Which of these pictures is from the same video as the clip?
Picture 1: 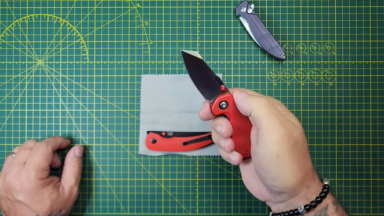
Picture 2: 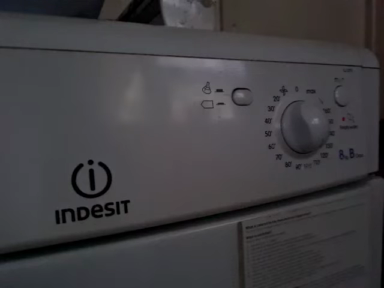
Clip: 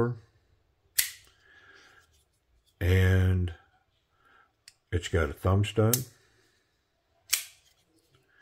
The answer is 1